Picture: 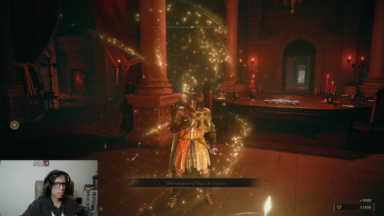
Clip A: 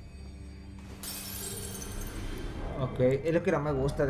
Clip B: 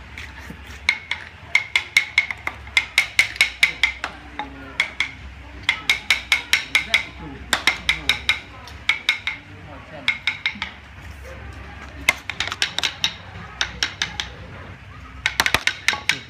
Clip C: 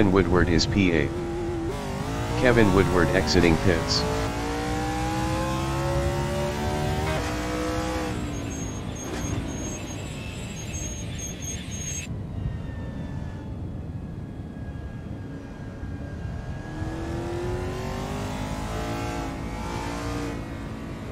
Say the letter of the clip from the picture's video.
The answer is A